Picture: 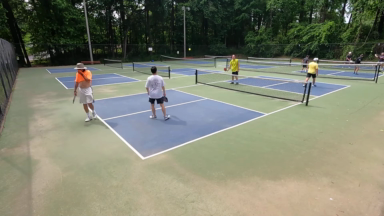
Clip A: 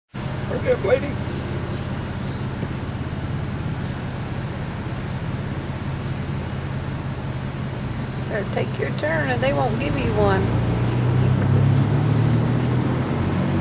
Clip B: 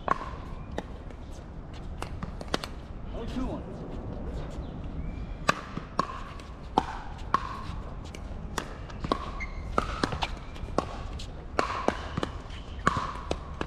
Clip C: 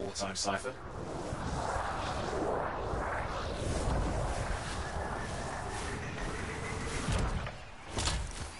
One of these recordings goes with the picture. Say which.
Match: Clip B